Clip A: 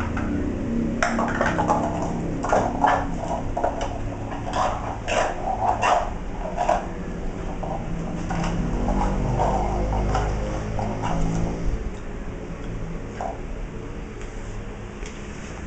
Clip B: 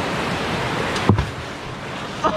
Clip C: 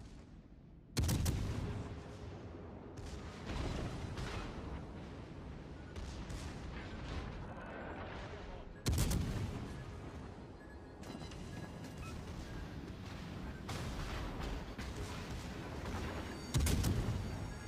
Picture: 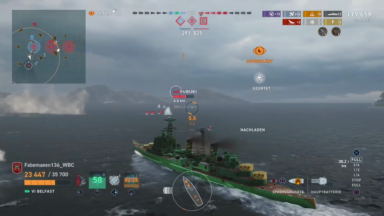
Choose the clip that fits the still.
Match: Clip C